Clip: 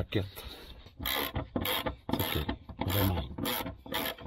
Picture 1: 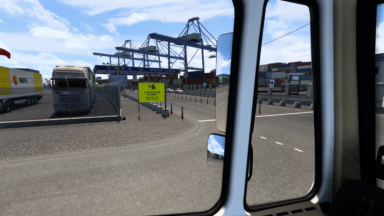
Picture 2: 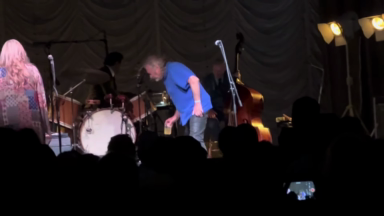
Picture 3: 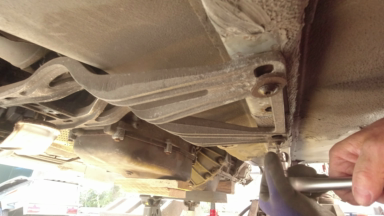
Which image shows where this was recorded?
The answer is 3